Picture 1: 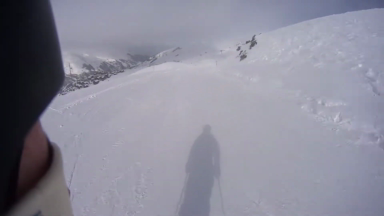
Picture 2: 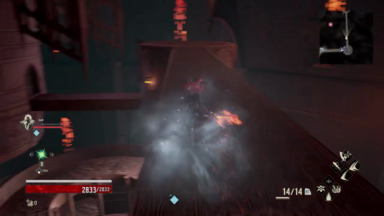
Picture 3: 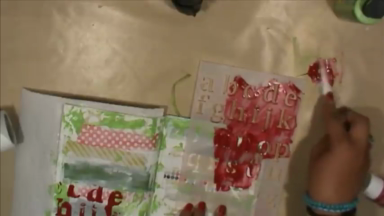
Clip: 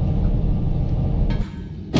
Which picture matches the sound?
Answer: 2